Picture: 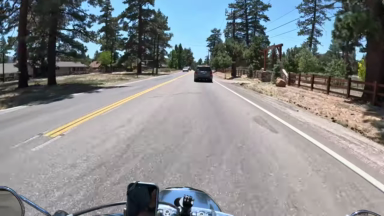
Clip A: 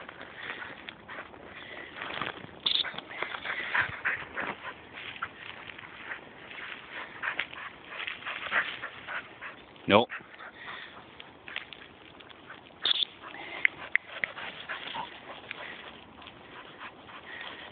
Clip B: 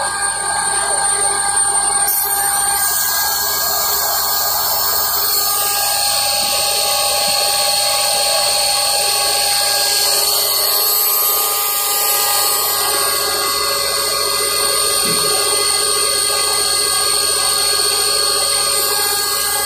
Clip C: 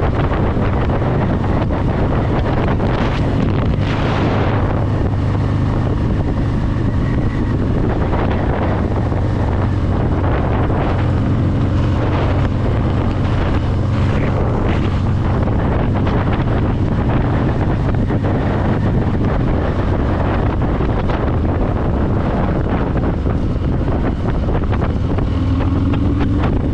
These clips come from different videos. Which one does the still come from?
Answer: C